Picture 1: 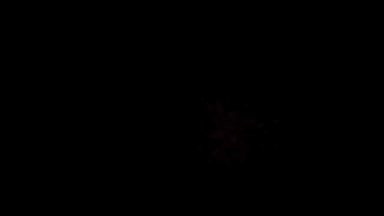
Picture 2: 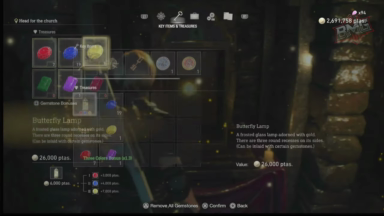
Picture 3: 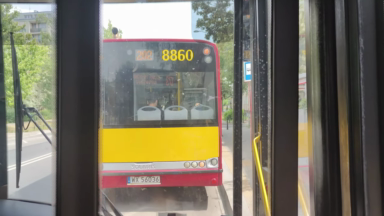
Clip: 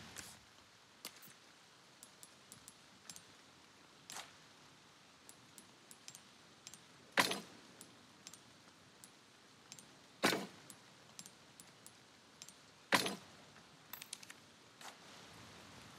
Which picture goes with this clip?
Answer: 2